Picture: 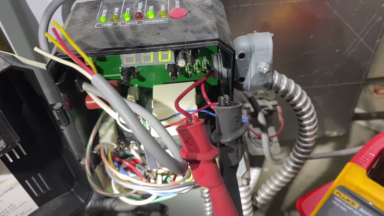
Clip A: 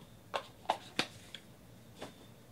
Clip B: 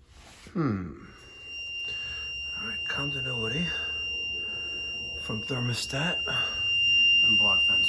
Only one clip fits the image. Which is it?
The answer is B